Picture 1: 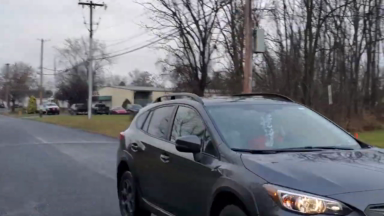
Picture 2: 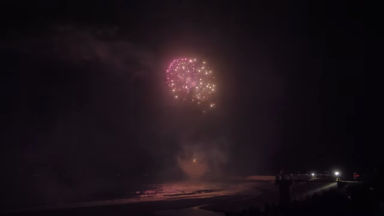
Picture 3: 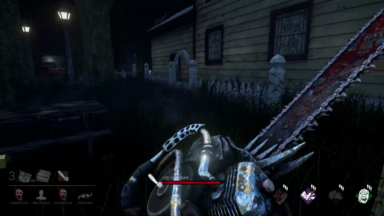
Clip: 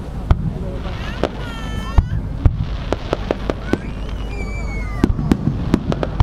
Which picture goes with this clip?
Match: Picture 2